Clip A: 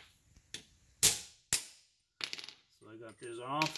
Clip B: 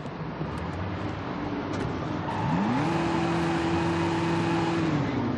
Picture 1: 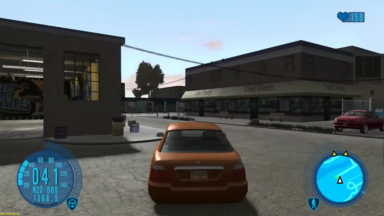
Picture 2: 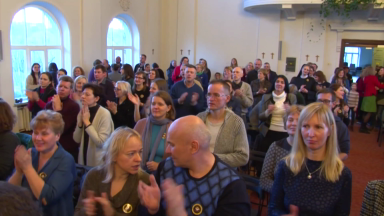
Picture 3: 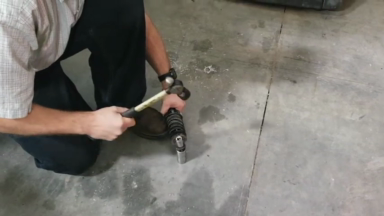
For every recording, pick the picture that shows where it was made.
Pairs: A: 3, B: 1